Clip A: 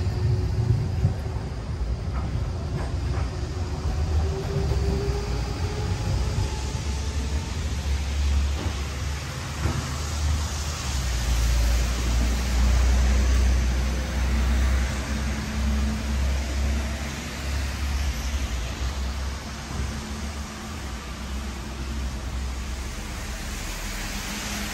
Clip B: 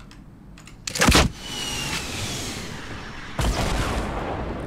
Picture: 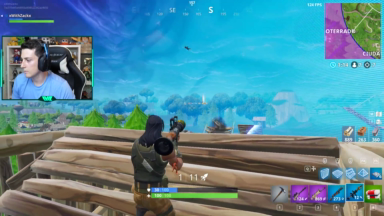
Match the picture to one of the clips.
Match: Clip B